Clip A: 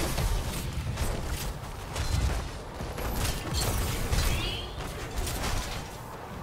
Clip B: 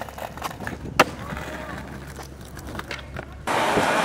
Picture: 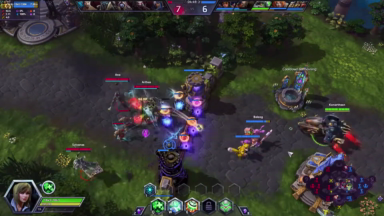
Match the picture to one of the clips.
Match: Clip A